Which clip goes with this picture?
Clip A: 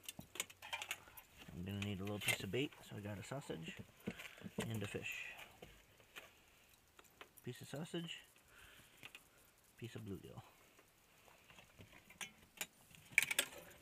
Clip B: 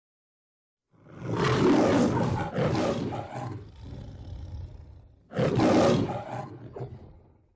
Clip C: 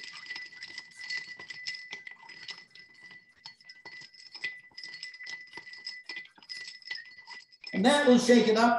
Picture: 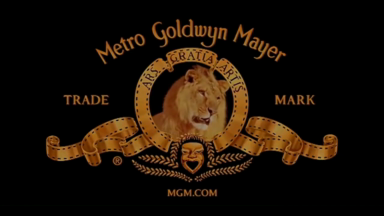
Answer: B